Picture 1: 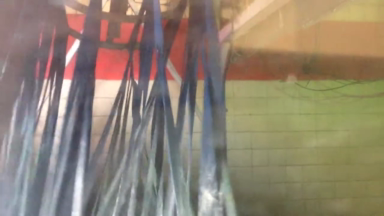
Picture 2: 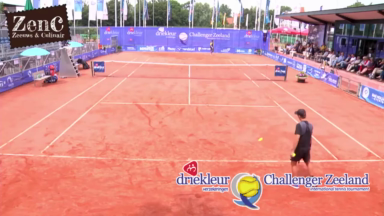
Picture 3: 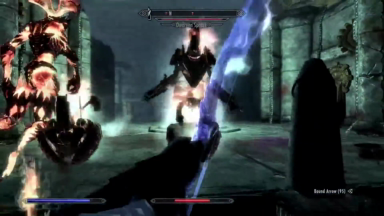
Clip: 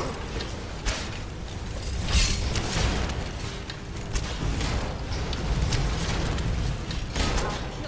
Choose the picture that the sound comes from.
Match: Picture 3